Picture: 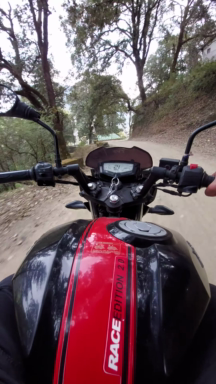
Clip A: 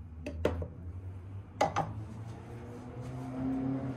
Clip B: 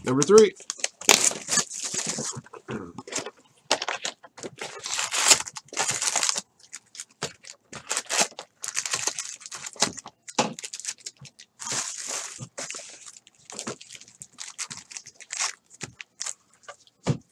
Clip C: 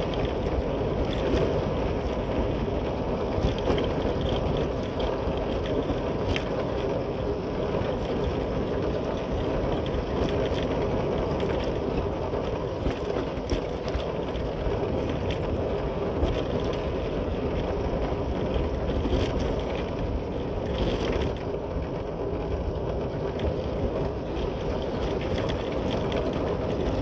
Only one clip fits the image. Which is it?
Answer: C